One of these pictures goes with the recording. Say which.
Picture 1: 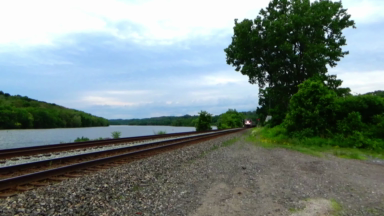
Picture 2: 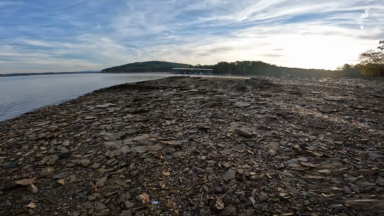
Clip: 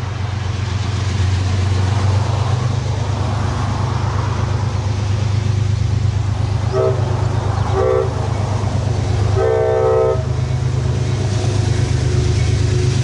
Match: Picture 1